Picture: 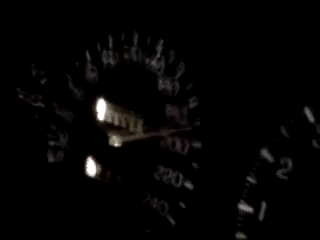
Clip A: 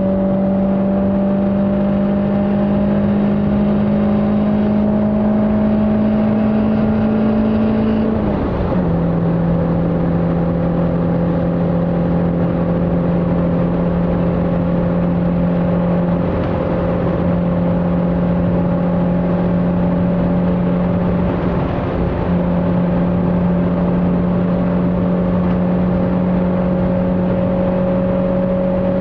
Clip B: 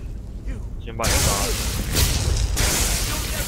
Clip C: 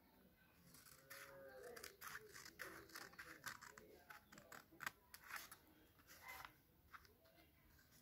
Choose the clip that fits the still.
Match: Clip A